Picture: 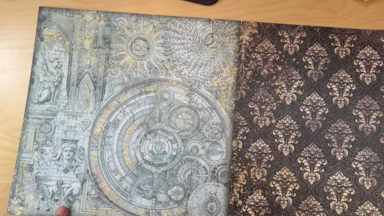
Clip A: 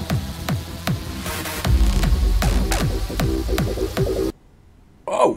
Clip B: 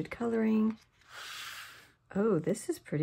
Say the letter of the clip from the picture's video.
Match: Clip B